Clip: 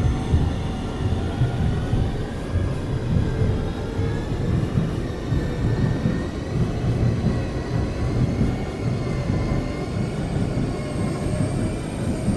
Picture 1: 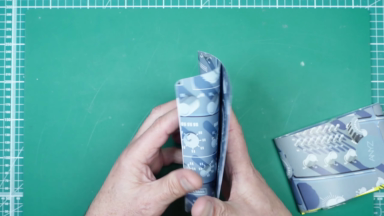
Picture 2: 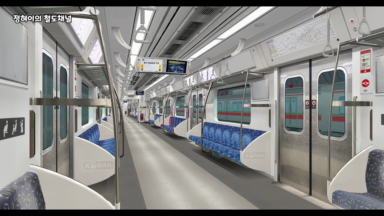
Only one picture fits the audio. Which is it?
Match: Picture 2